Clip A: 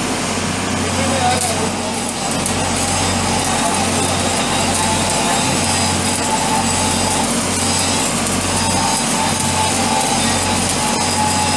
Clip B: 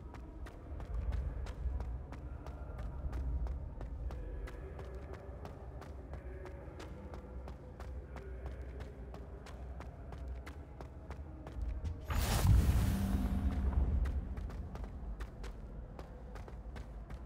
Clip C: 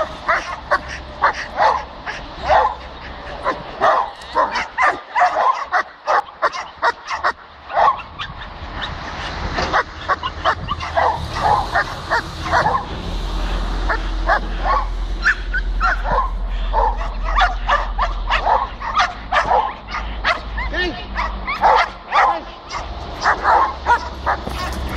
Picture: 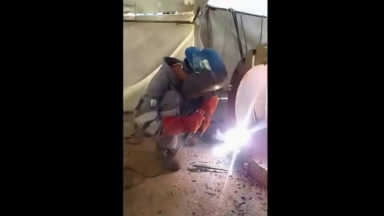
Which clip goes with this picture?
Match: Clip A